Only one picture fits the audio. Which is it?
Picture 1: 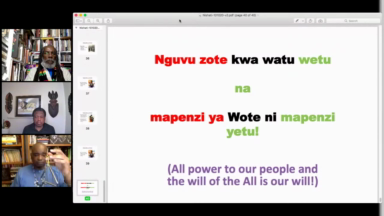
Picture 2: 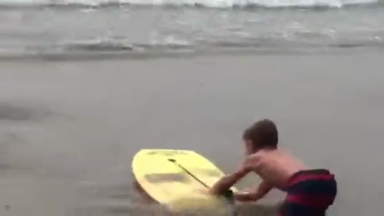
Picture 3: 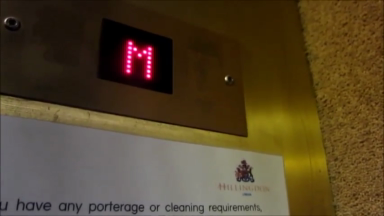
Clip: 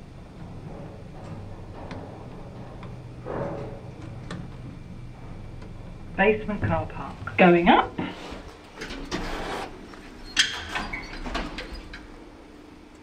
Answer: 3